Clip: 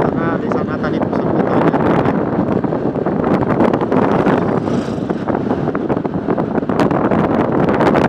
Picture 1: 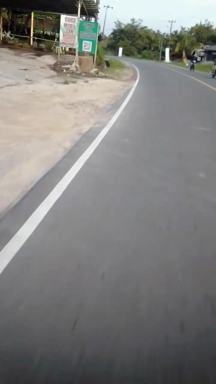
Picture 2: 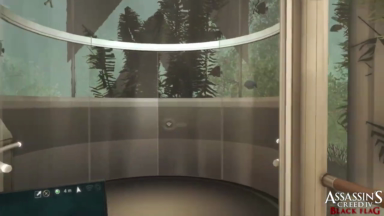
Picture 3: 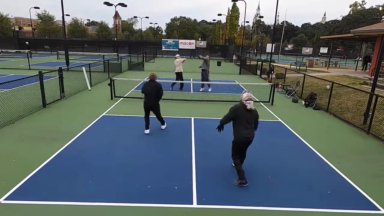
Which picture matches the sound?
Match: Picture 1